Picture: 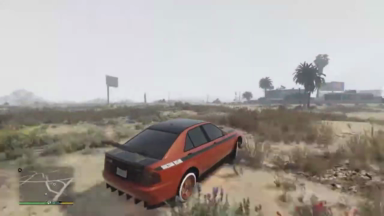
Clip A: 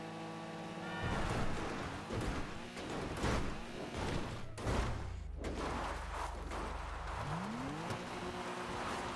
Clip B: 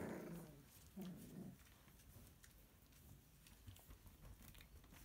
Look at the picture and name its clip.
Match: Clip A